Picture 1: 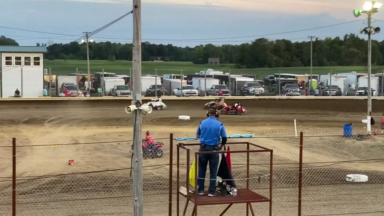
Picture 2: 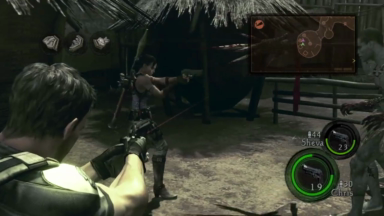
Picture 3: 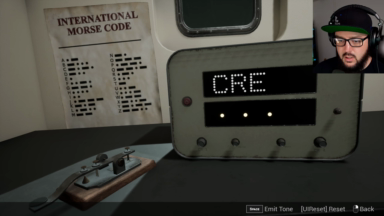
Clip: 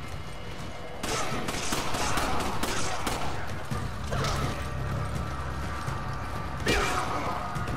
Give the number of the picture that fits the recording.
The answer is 2